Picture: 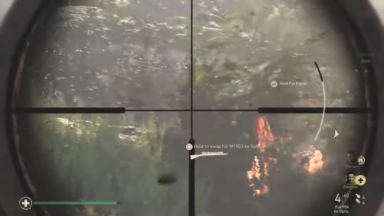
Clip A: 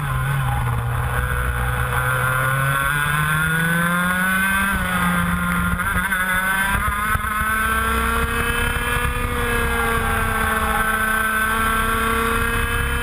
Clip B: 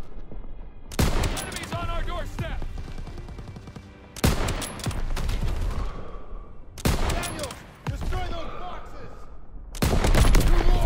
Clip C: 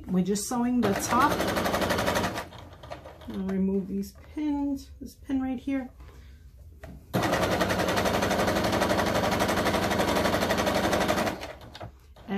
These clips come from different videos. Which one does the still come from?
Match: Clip B